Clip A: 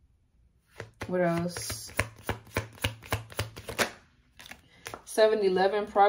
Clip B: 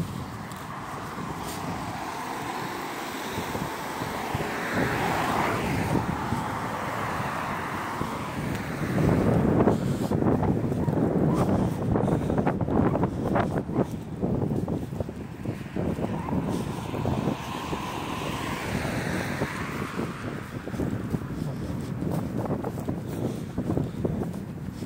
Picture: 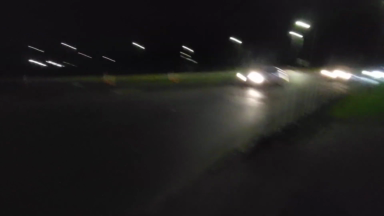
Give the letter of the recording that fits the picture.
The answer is B